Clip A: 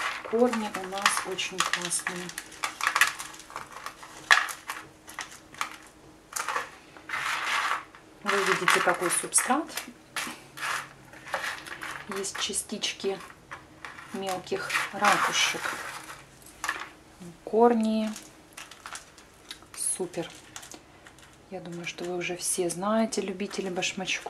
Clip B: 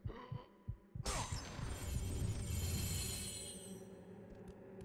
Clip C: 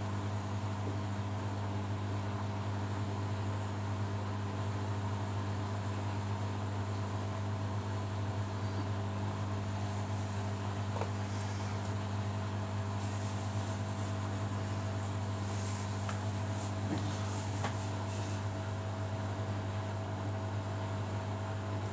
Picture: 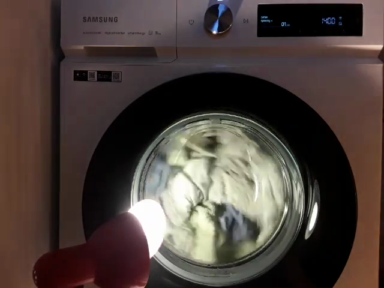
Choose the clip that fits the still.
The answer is C